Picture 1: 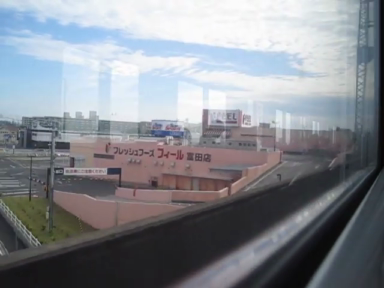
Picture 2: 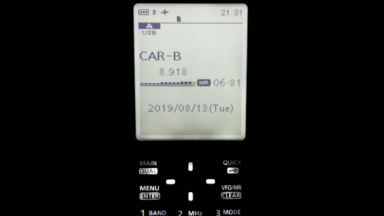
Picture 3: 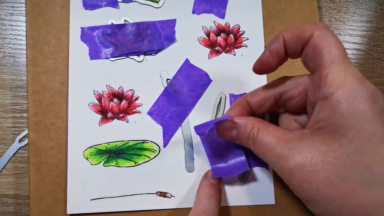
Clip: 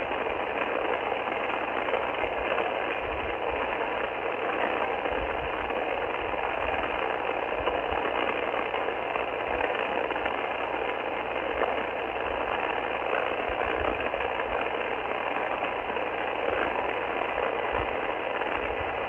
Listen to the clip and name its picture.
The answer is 2